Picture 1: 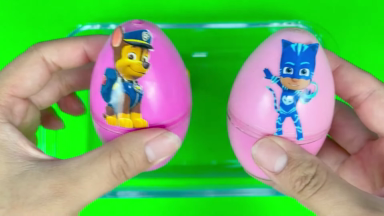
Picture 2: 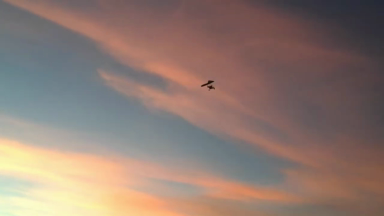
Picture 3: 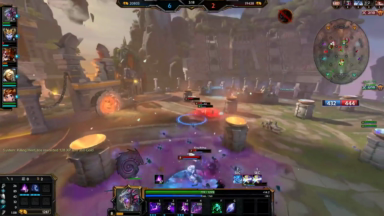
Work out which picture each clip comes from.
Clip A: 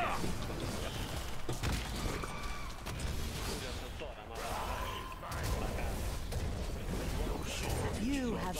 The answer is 3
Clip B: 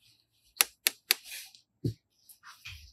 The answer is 1